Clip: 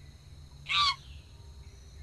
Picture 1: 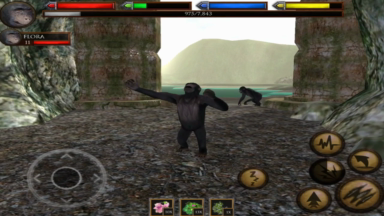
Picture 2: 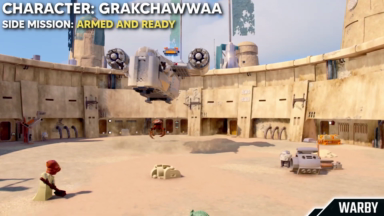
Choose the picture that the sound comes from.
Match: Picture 1